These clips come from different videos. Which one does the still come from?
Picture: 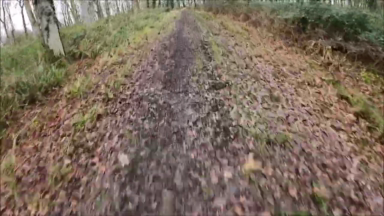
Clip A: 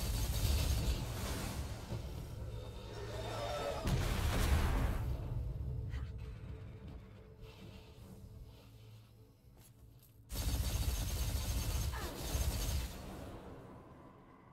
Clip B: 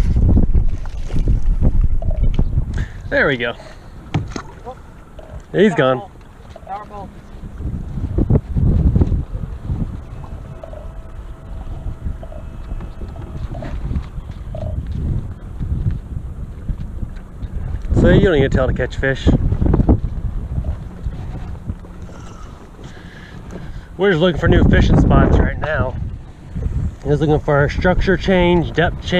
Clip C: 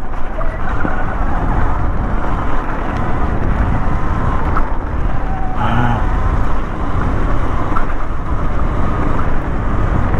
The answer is C